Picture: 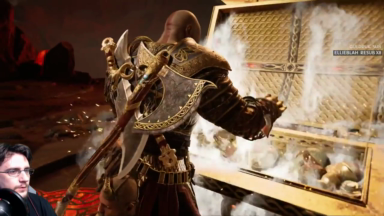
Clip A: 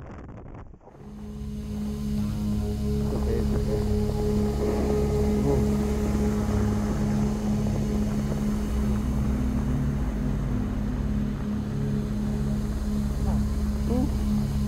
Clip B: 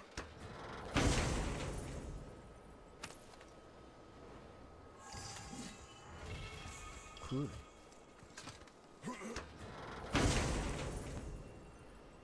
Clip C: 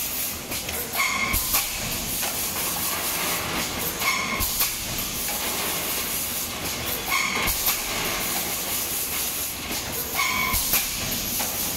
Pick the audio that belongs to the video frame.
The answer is B